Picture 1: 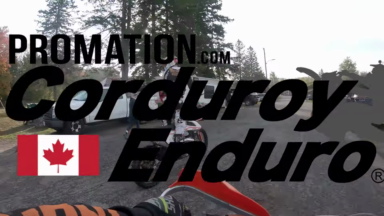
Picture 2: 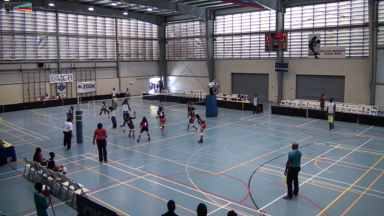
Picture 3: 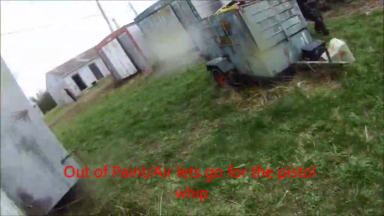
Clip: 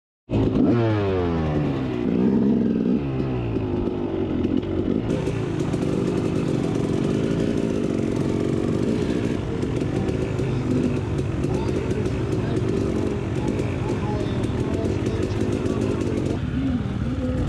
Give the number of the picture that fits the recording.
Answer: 1